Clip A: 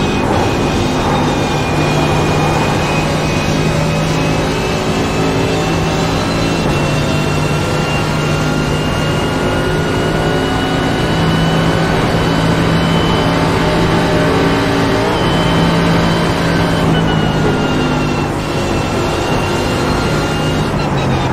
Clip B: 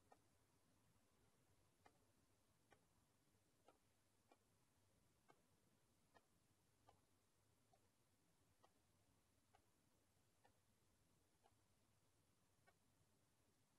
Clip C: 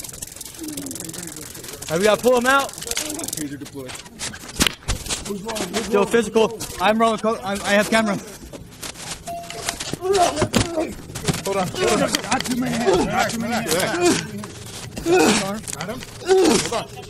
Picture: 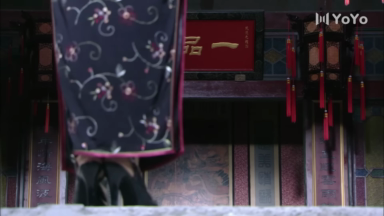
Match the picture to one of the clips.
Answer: B